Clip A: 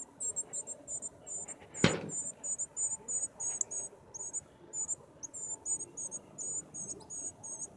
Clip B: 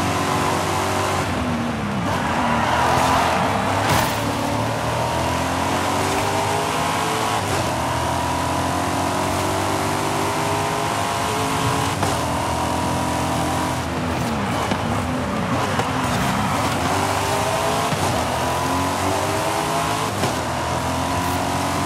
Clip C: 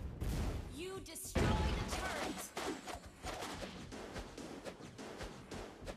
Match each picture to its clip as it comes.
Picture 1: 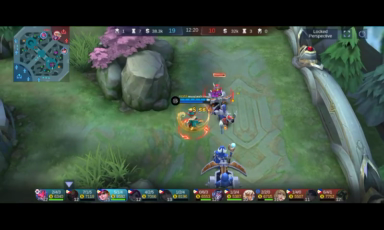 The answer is C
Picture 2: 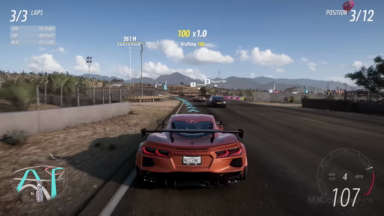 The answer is B